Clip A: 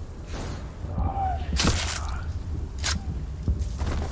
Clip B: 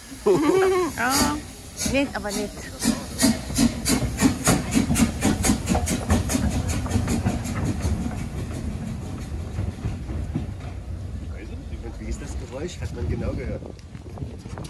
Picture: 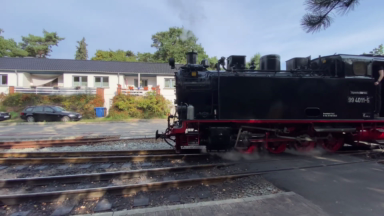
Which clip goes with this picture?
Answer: B